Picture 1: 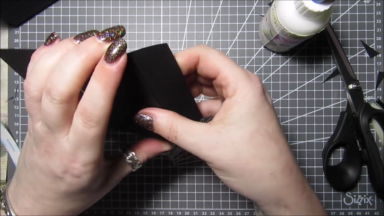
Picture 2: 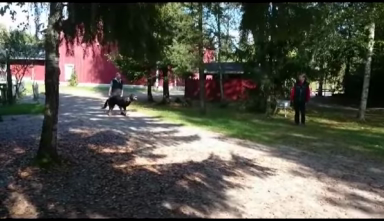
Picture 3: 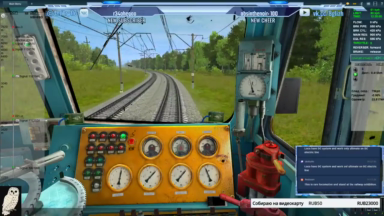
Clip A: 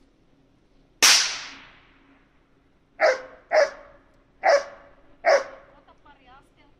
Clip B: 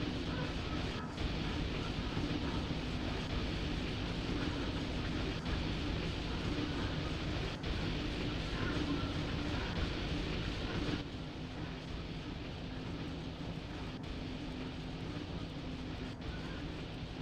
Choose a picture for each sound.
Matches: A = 2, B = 3